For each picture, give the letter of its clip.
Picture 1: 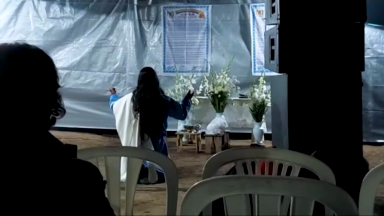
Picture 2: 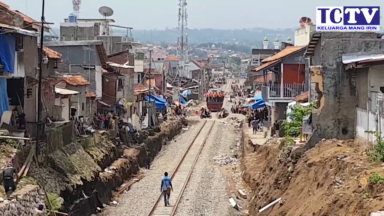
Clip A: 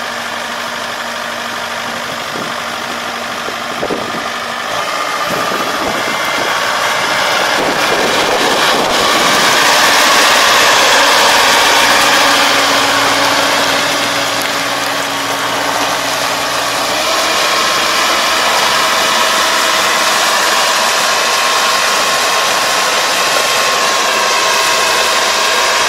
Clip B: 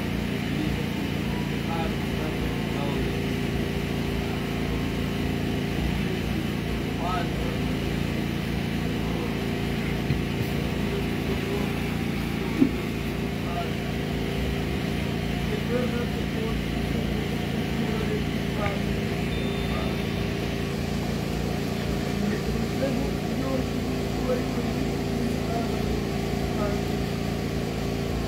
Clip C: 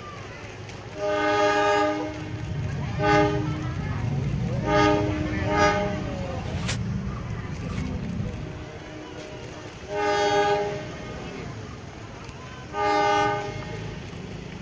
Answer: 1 B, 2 C